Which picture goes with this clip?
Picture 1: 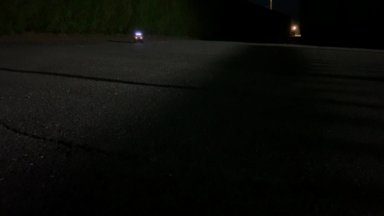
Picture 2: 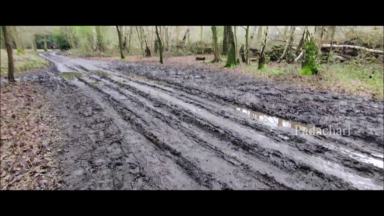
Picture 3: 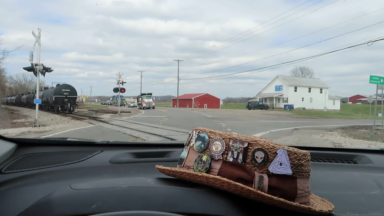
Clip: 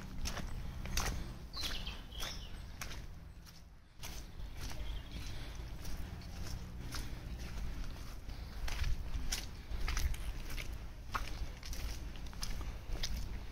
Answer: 2